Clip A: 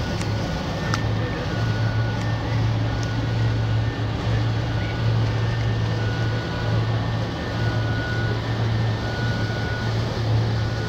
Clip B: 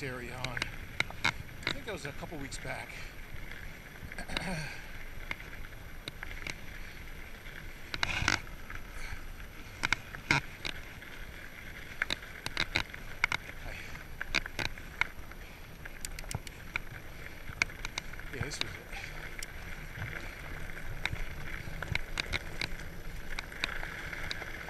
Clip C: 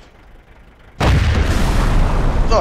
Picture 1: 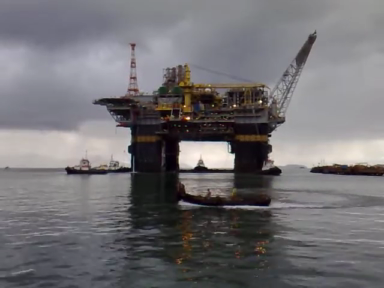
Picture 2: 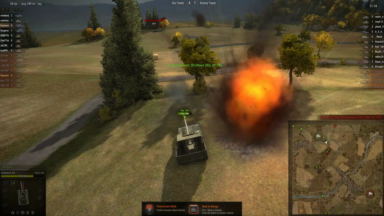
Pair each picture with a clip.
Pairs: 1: A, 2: C